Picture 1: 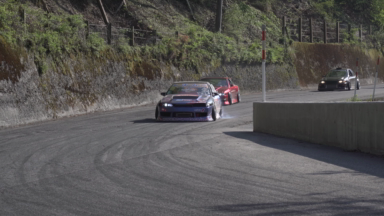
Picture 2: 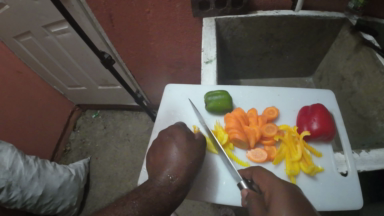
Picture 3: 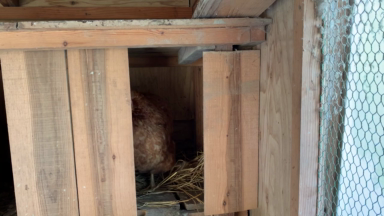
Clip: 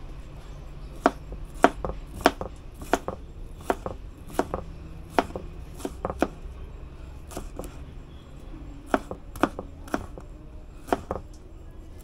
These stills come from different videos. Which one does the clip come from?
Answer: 2